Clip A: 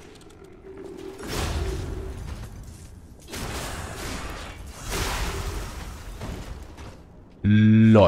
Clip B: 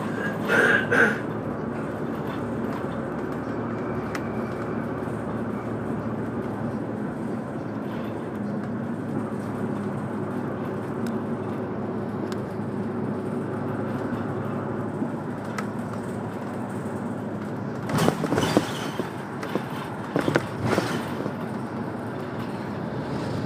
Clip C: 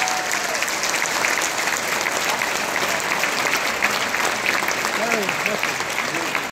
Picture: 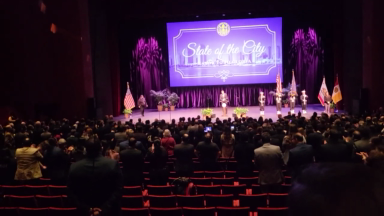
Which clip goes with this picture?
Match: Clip C